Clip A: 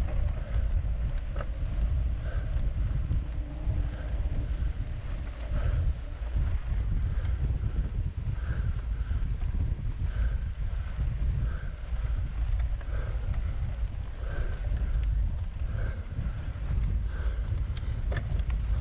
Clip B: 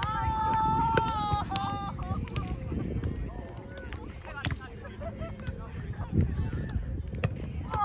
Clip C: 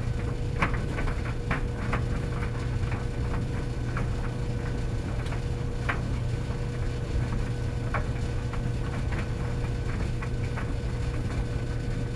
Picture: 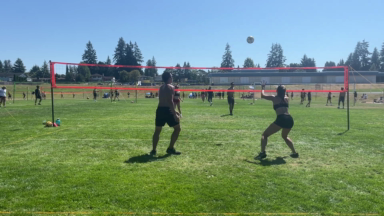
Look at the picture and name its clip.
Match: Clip B